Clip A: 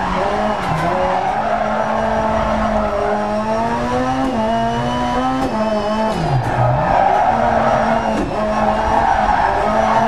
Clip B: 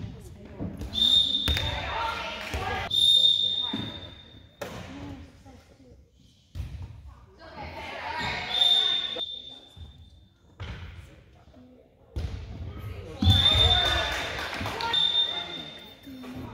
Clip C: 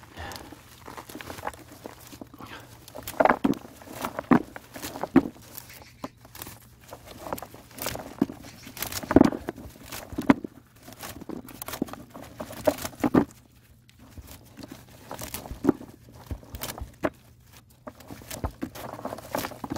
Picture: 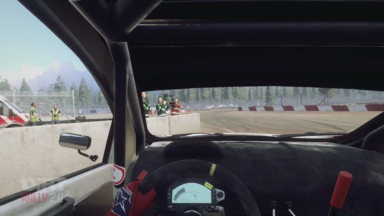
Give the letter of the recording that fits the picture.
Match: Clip A